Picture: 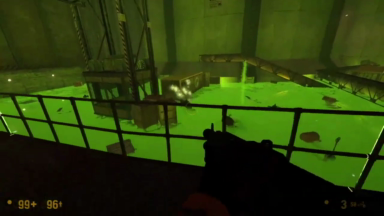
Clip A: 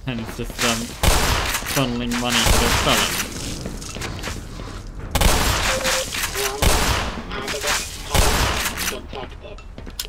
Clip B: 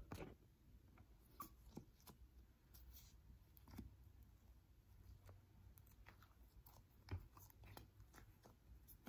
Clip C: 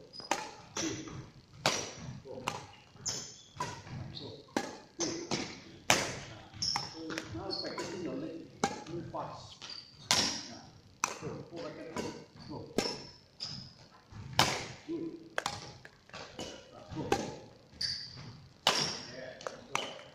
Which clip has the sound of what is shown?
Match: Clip A